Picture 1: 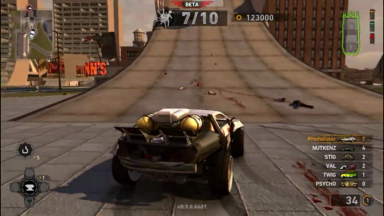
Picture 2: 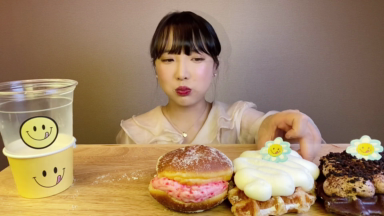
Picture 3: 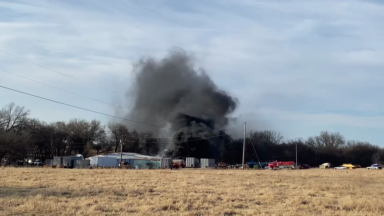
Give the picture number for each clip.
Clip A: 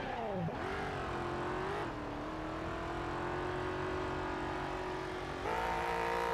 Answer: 1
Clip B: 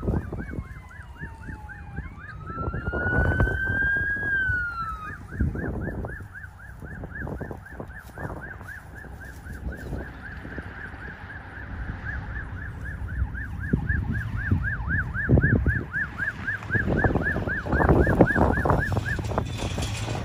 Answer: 3